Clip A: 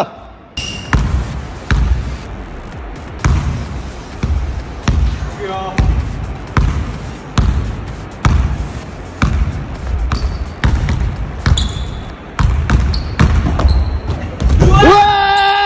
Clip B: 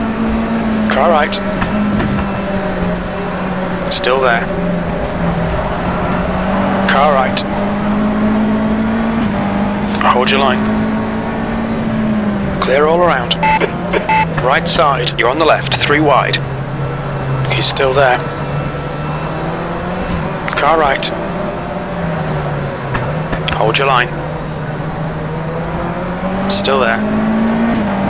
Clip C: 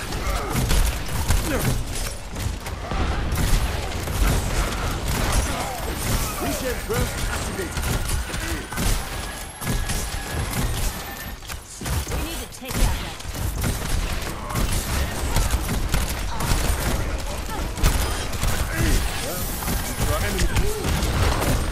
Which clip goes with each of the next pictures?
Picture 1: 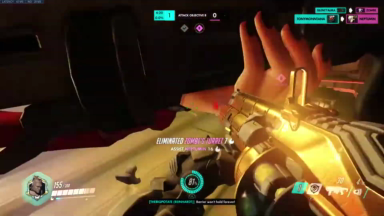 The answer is C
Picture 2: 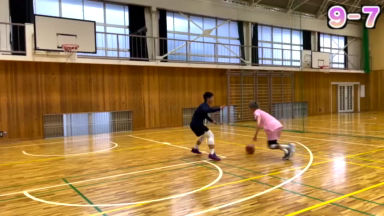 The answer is A